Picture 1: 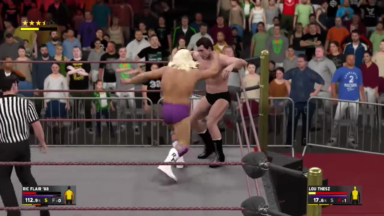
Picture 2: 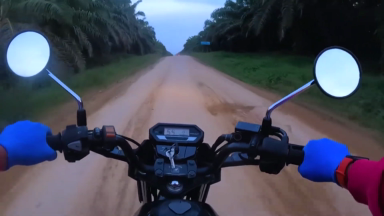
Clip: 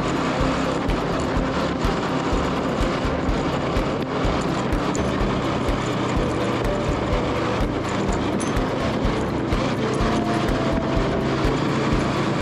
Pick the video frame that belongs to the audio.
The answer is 2